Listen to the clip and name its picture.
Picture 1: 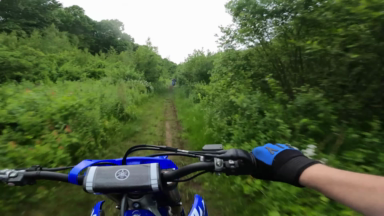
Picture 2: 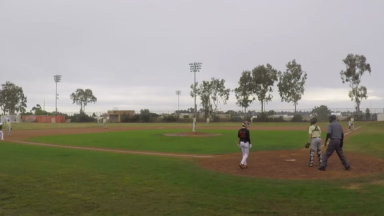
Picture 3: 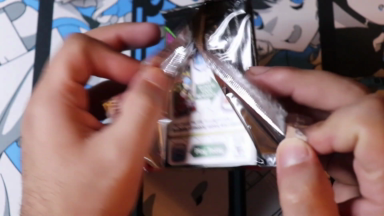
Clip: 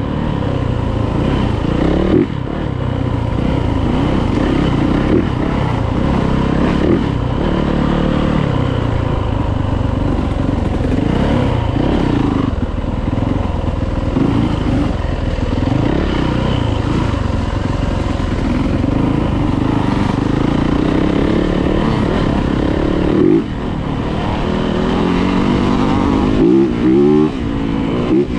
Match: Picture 1